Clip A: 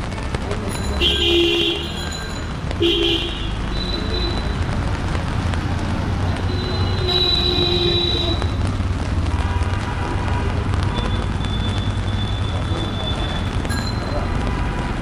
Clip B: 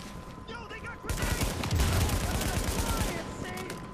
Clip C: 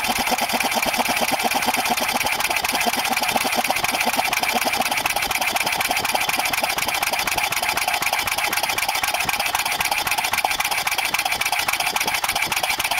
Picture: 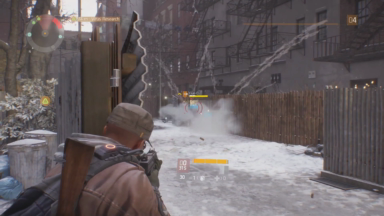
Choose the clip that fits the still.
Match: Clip B